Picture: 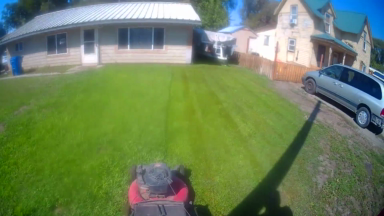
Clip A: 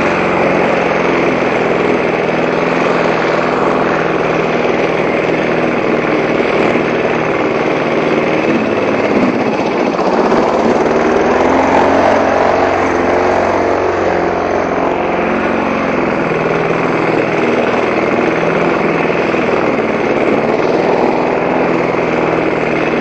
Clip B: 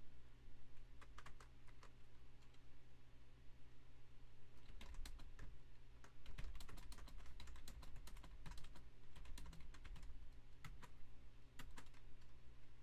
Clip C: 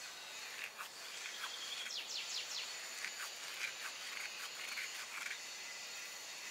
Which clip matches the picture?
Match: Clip A